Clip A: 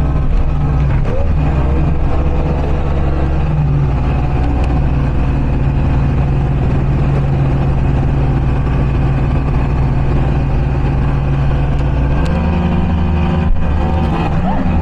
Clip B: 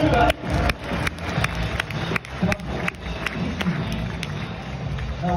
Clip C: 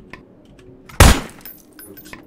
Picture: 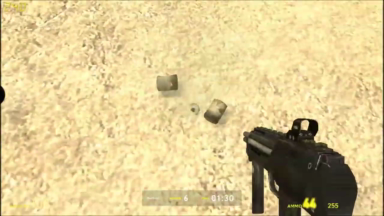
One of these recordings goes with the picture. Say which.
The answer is C